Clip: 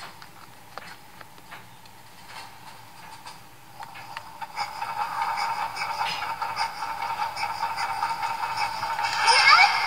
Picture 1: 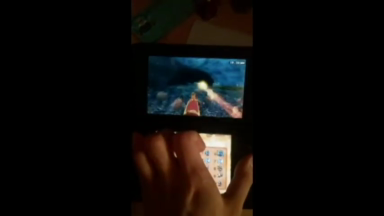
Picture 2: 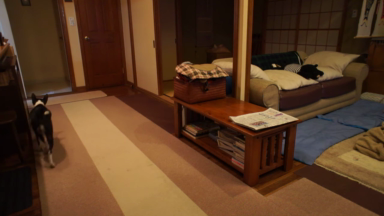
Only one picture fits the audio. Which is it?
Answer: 1